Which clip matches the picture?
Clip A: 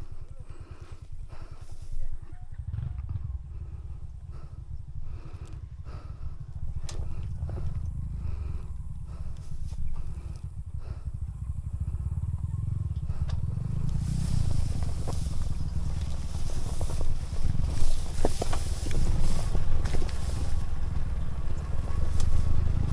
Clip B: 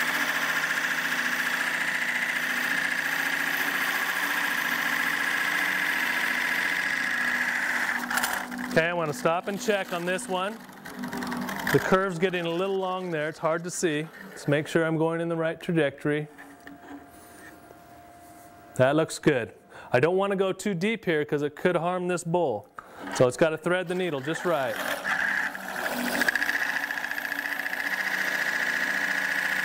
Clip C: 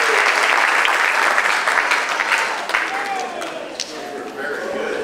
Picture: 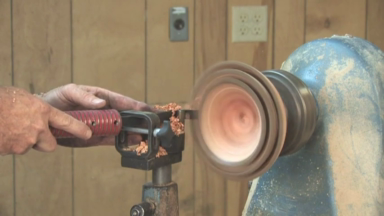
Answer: B